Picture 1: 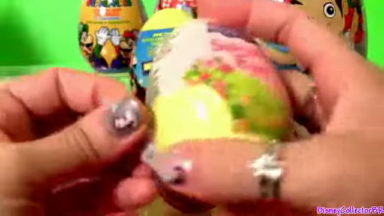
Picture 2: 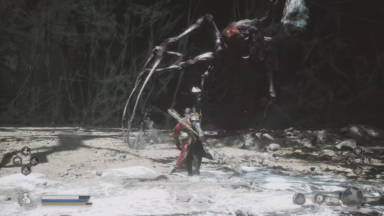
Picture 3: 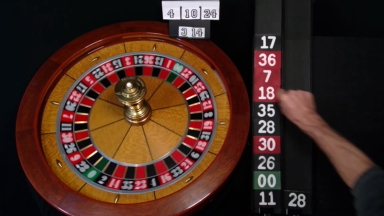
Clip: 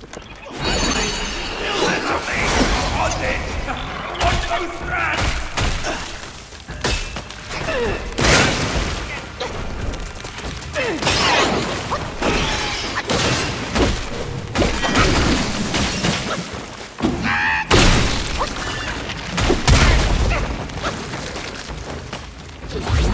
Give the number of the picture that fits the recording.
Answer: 2